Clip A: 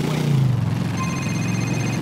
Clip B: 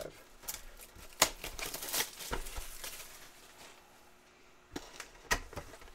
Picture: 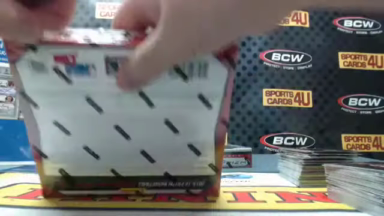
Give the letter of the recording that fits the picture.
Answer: B